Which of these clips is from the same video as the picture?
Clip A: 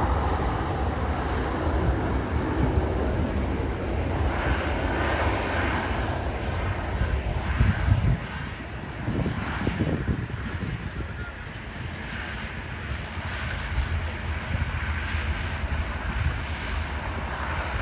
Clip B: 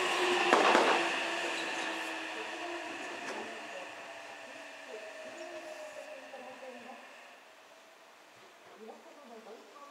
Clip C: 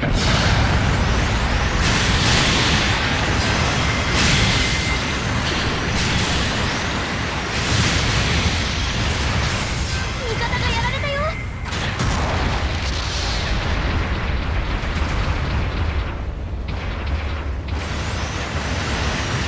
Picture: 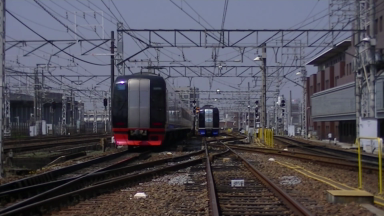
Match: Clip B